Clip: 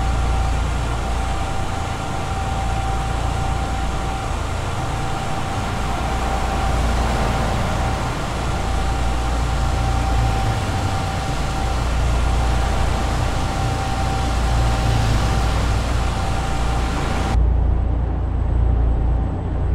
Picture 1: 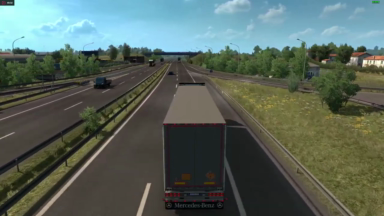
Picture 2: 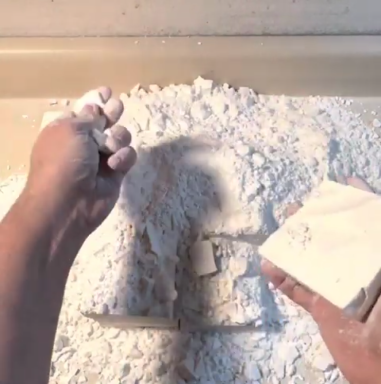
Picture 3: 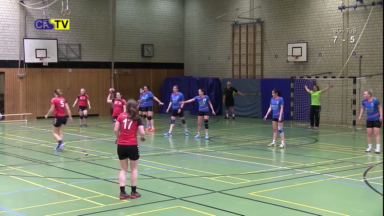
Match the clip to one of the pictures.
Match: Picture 1